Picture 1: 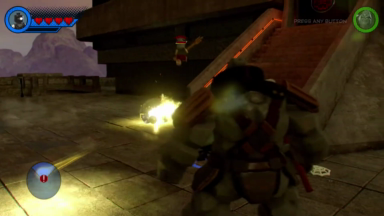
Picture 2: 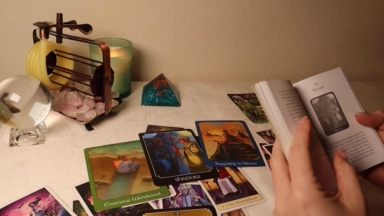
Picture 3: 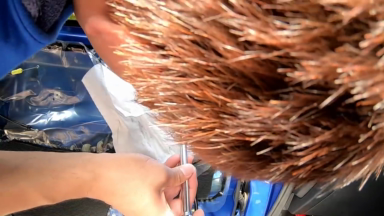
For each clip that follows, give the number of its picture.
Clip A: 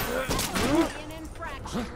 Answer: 1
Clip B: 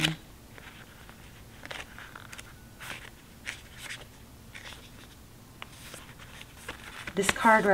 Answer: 2